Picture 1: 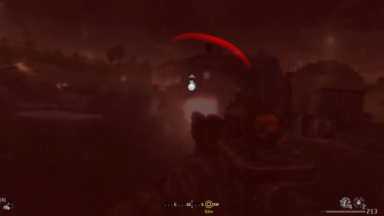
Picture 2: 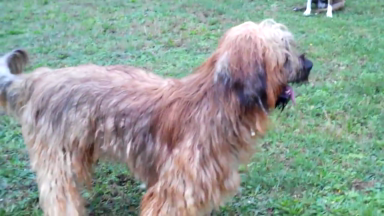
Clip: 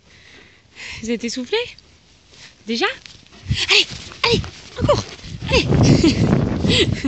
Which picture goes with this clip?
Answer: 2